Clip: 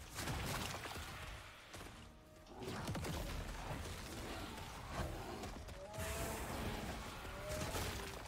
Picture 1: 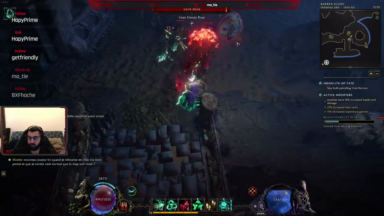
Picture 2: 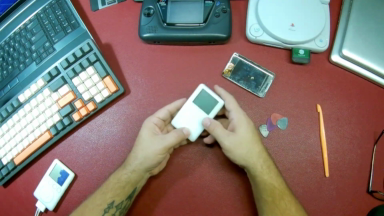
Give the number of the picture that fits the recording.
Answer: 1